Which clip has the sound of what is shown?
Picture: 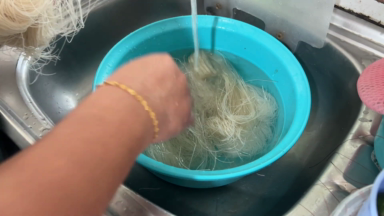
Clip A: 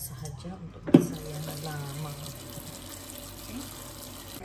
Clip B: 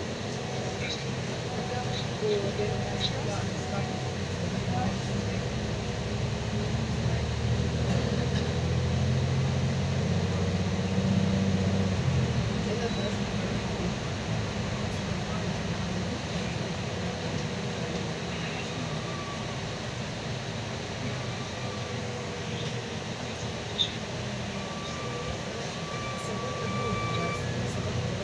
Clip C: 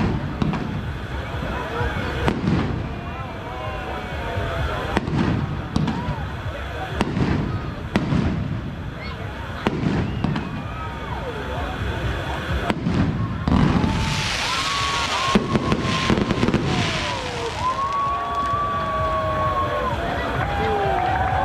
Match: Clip A